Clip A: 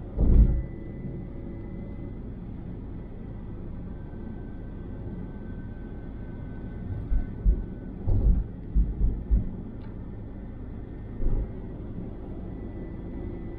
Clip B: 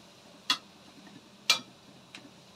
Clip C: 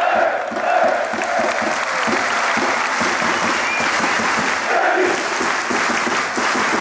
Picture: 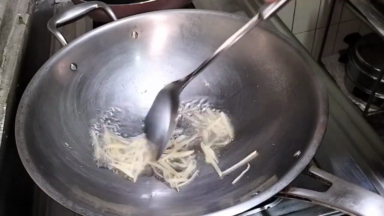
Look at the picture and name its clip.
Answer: B